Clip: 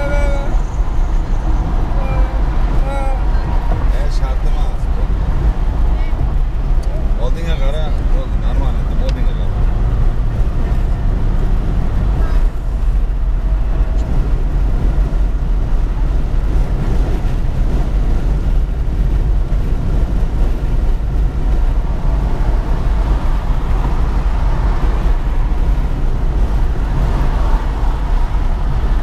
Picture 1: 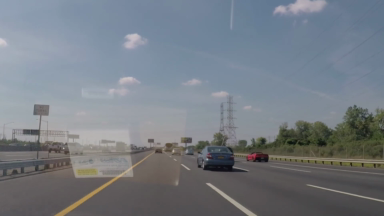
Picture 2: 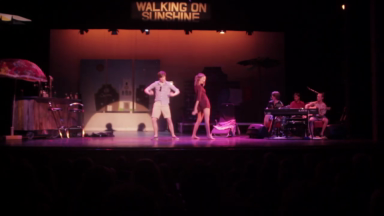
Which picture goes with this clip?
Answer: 1